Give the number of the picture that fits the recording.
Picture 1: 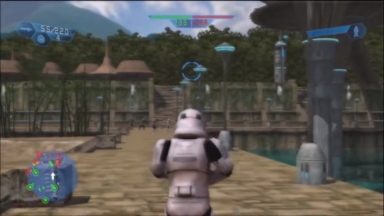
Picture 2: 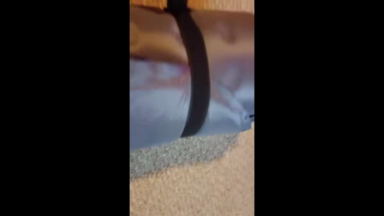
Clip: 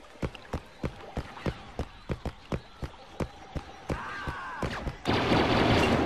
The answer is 1